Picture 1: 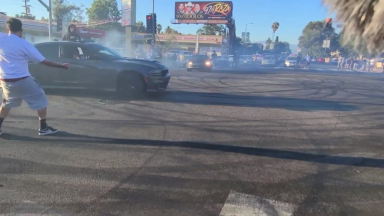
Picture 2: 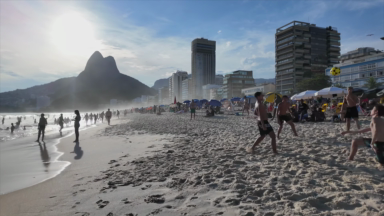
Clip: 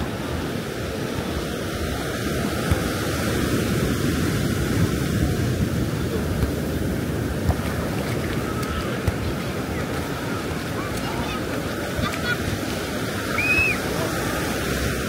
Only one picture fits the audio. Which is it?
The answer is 2